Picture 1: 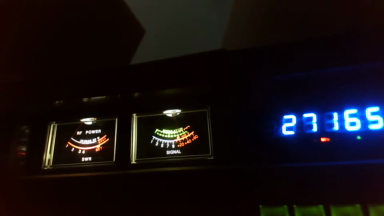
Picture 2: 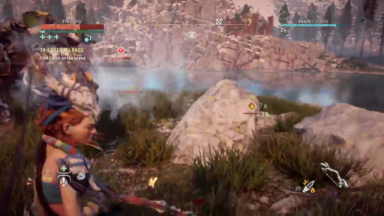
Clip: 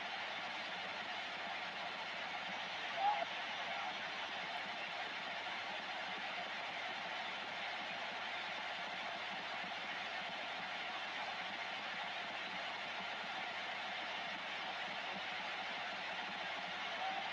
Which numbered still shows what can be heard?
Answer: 1